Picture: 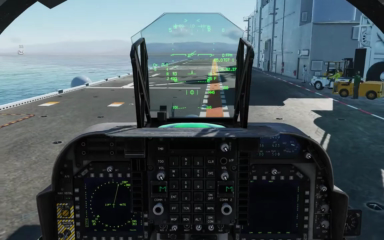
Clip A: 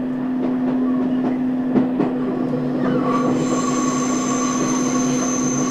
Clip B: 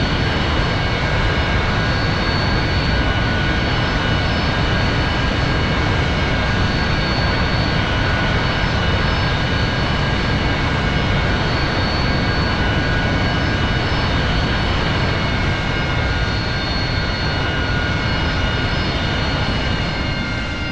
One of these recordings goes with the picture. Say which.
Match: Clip B